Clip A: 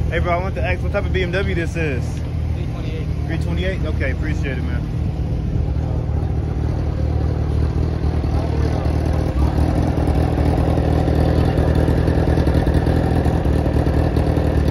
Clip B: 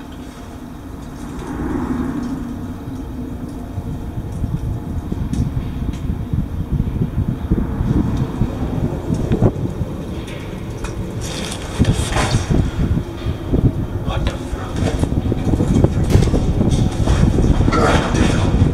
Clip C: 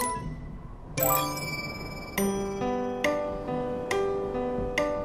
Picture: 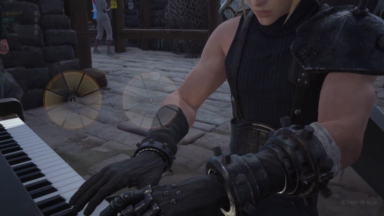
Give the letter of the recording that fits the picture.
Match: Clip C